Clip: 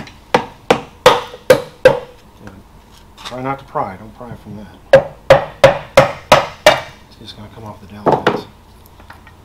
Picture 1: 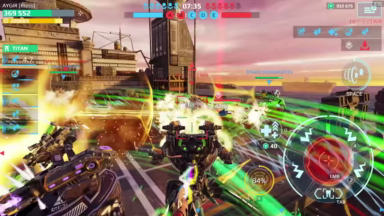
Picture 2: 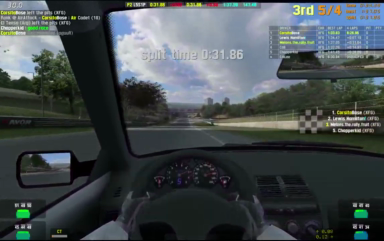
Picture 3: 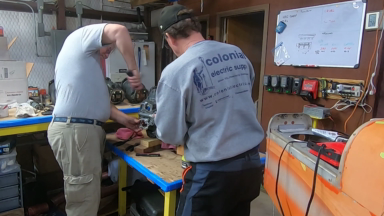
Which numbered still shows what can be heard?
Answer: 3